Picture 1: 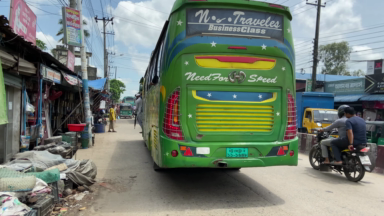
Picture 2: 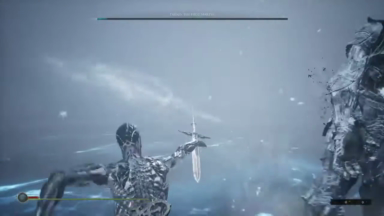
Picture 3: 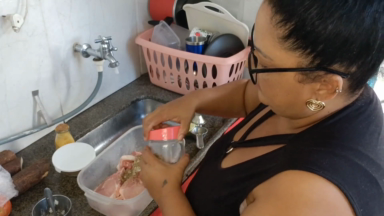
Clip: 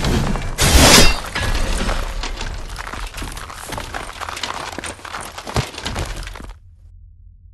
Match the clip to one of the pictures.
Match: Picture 2